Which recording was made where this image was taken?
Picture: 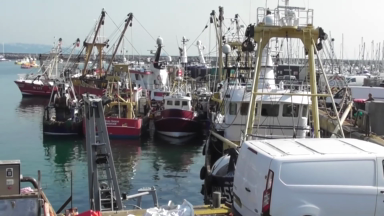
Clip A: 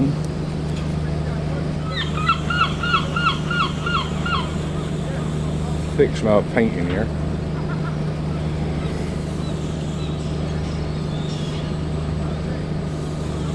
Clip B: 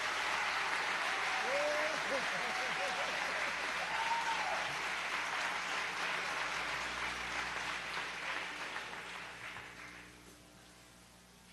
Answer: A